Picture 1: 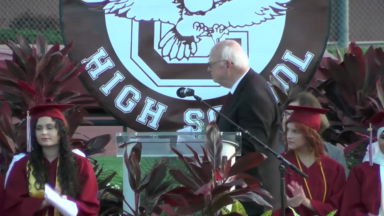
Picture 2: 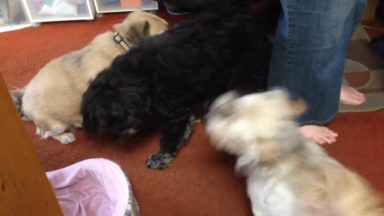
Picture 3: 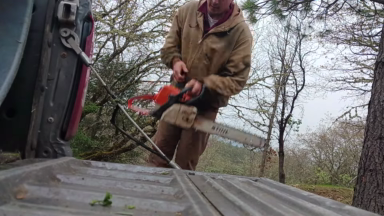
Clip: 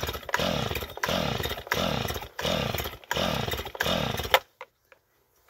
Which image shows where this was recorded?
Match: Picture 3